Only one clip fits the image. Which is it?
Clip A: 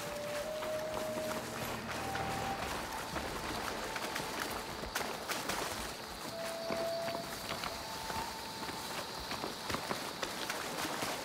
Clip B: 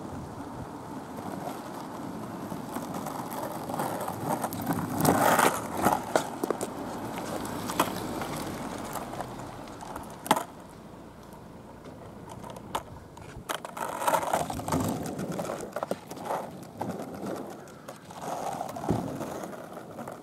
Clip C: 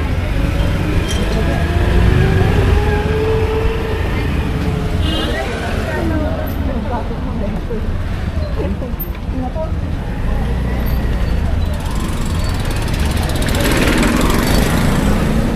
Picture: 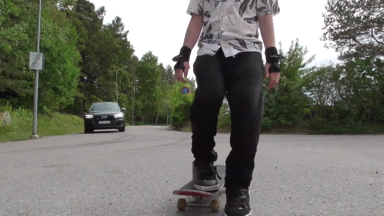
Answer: B